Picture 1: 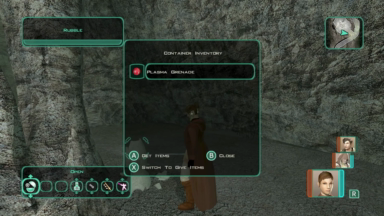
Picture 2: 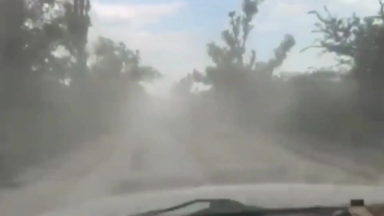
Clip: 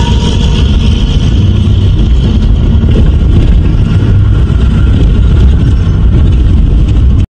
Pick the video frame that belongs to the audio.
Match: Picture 2